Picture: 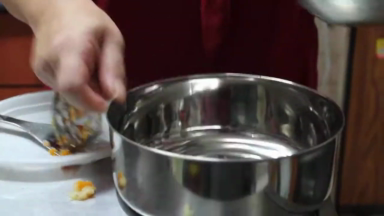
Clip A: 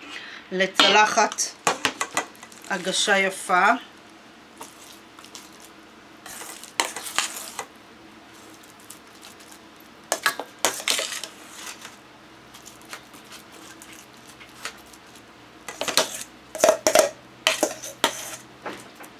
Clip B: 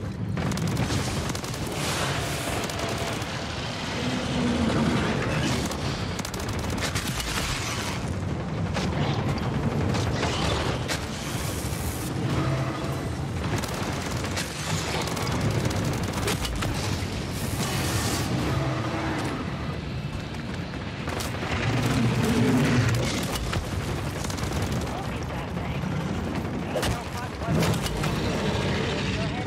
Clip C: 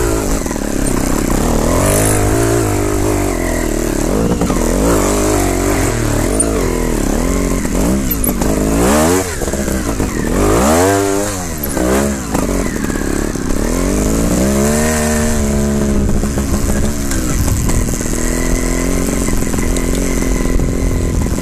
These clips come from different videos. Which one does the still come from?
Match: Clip A